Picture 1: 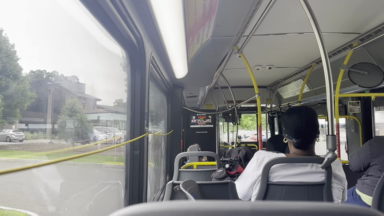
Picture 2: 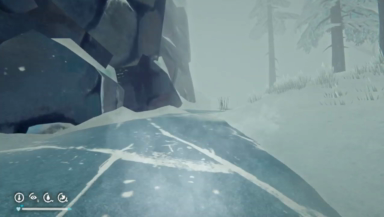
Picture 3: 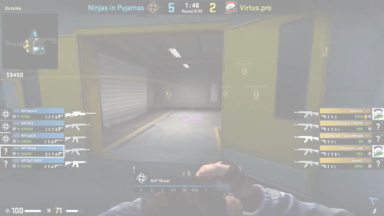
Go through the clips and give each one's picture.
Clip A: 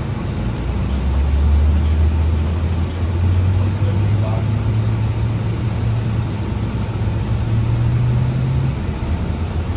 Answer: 1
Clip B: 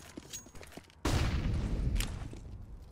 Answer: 3